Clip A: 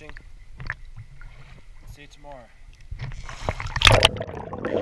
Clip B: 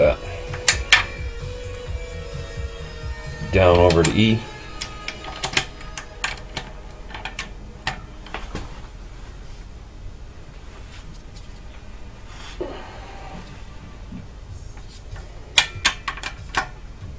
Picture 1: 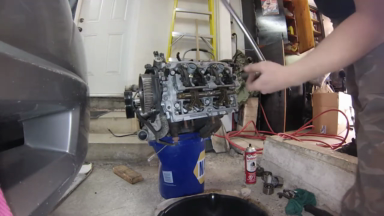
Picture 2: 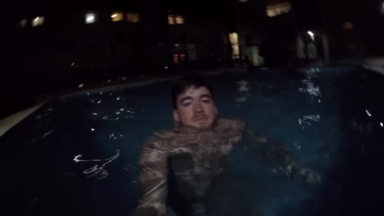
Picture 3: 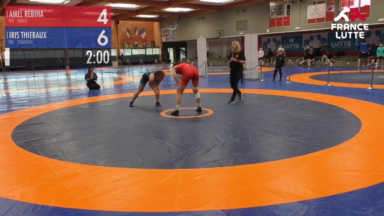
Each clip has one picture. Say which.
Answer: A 2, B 1